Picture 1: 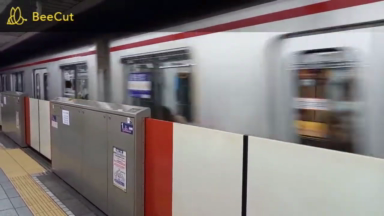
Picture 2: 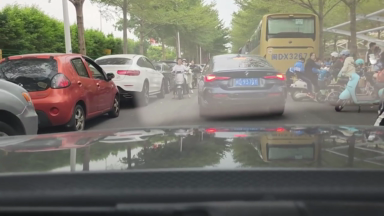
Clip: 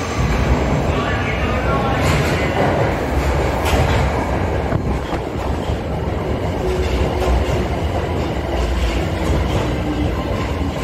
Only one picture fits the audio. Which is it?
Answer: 1